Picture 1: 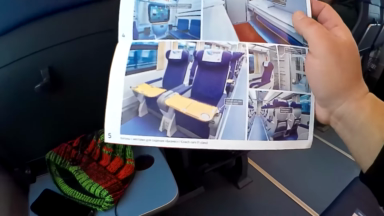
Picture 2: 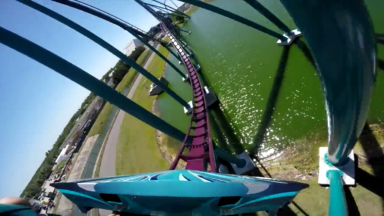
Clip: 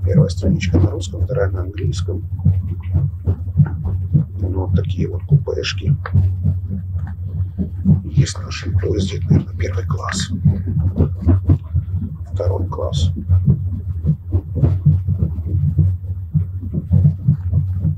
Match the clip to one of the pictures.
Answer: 1